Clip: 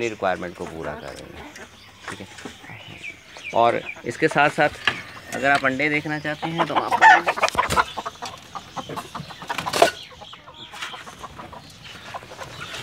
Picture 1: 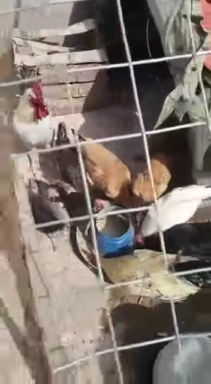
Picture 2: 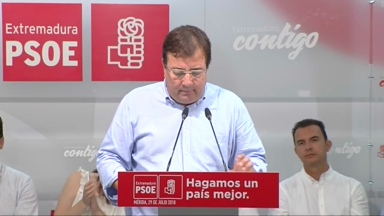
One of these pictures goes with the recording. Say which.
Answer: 1